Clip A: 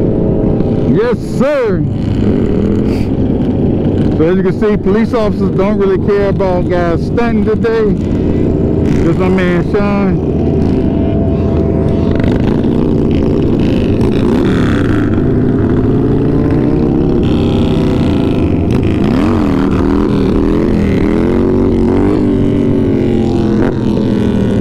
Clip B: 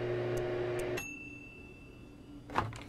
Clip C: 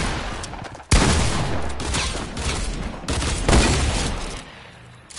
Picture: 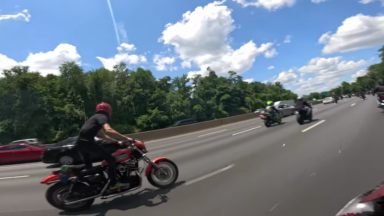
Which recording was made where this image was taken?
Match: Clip A